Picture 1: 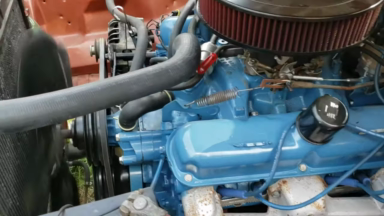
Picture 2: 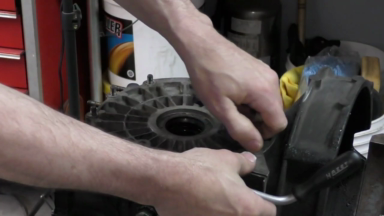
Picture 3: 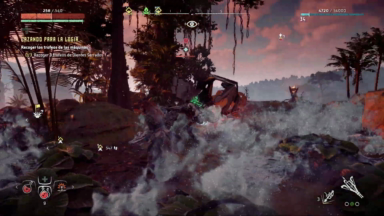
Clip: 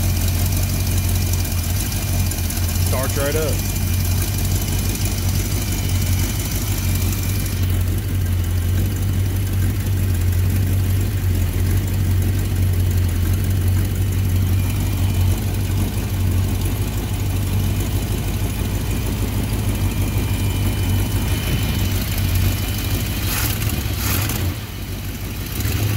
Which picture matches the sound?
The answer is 1